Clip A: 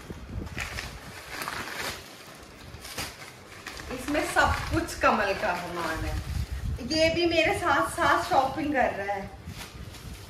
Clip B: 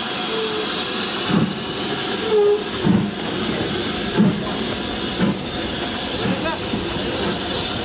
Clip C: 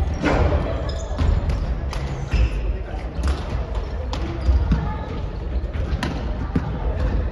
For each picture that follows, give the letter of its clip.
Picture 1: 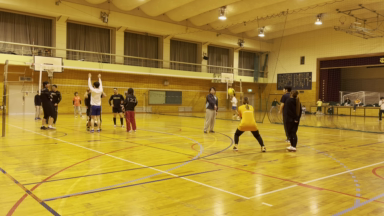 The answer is C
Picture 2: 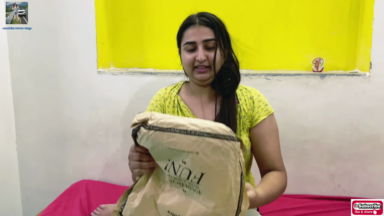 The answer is A